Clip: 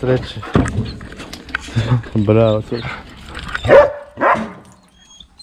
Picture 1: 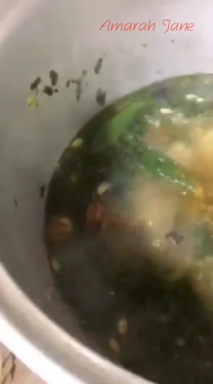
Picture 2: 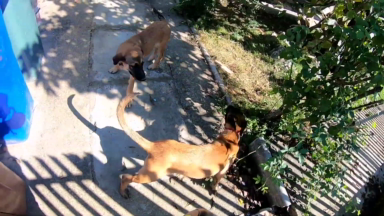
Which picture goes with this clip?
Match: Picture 2